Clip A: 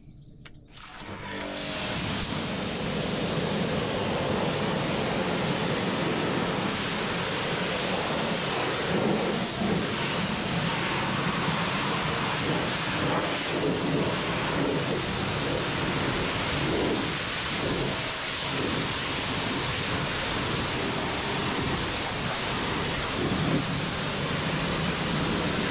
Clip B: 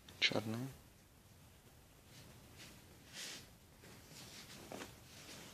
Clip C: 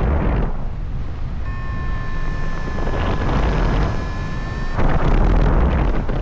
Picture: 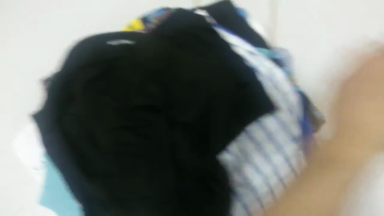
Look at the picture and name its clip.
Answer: B